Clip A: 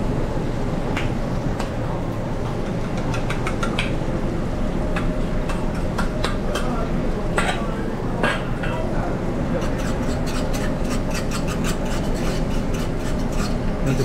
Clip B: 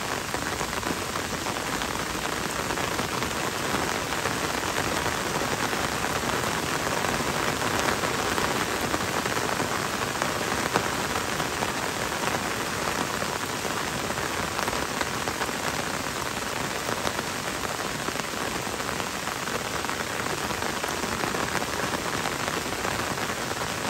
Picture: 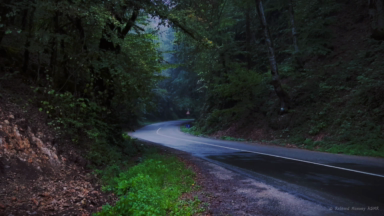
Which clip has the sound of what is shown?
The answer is B